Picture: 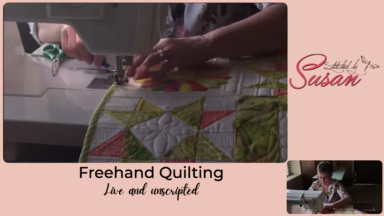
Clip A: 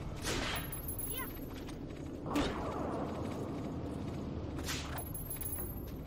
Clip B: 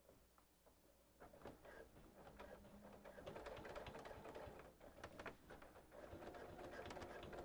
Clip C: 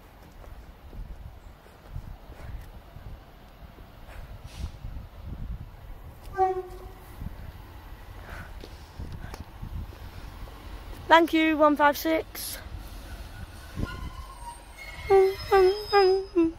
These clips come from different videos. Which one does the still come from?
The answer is B